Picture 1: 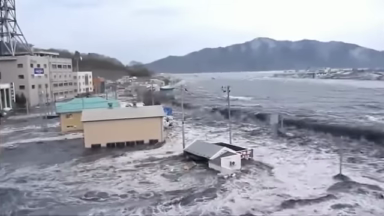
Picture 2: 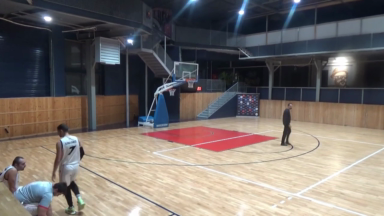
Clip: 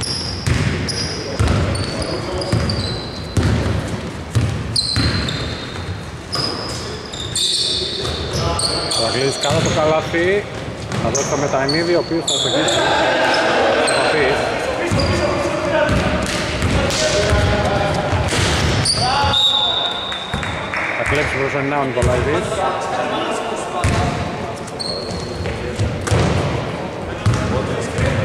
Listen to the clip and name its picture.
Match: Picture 2